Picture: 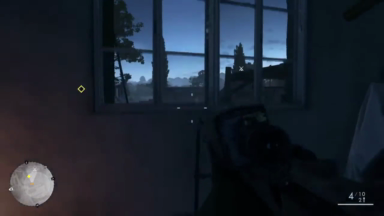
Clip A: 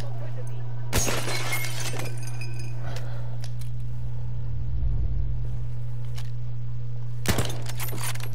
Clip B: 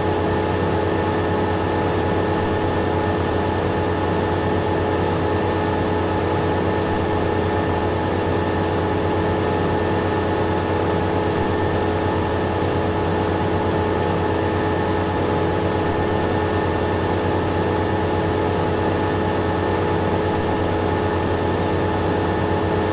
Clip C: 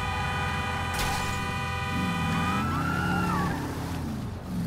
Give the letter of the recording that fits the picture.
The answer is A